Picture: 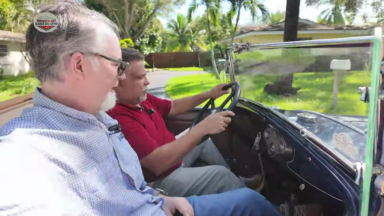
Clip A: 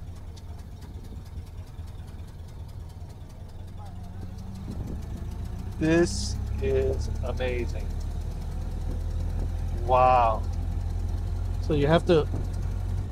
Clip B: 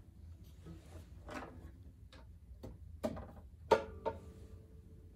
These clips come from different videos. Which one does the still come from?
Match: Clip A